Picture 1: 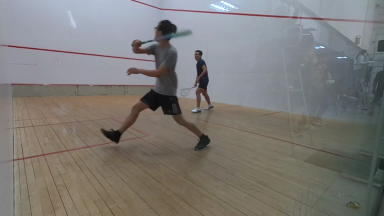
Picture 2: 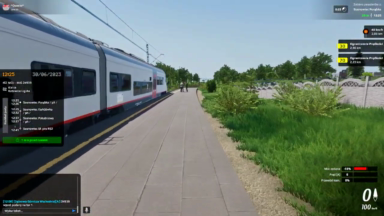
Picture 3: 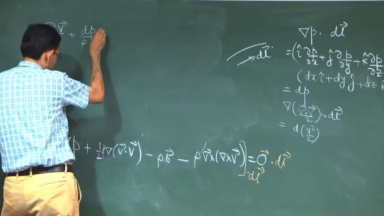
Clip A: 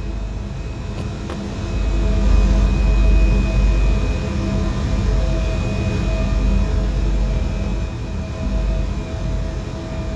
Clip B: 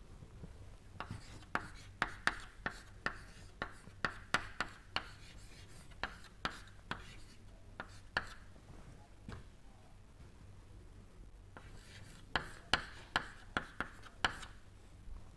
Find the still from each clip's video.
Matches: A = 2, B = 3